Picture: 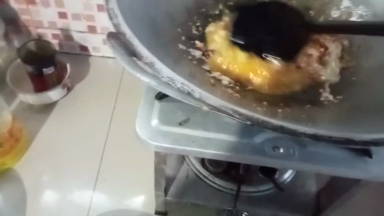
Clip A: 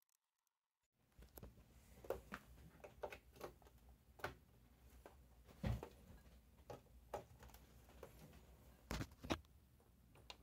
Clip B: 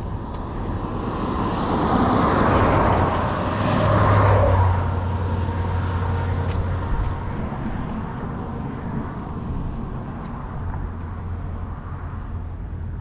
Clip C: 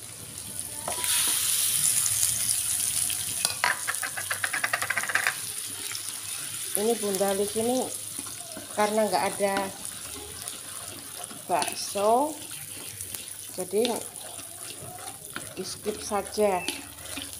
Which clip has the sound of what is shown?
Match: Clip C